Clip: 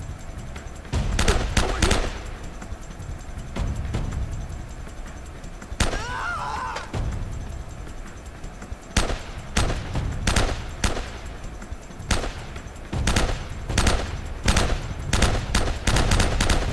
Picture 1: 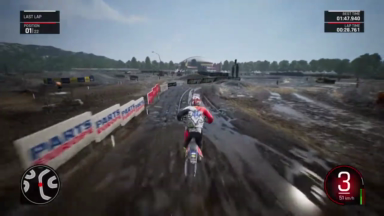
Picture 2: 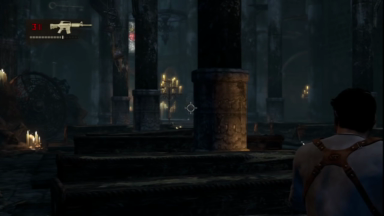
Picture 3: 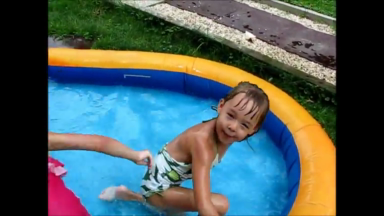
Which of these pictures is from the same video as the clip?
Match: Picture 2